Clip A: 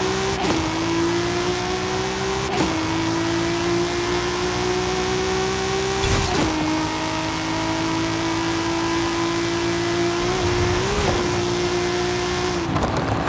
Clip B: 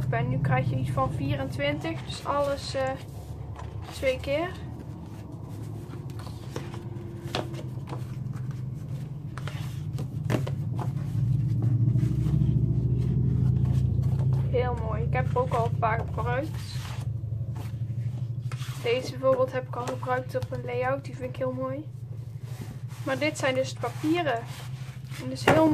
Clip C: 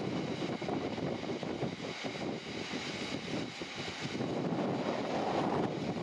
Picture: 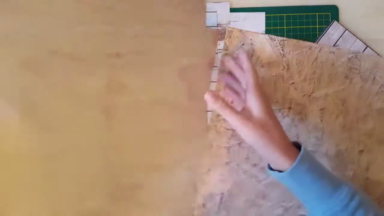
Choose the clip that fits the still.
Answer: B